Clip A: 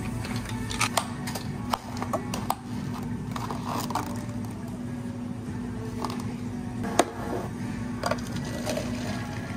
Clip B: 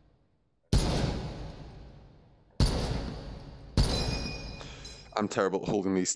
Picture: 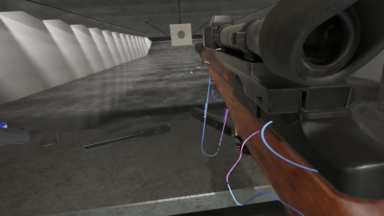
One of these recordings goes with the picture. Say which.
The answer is B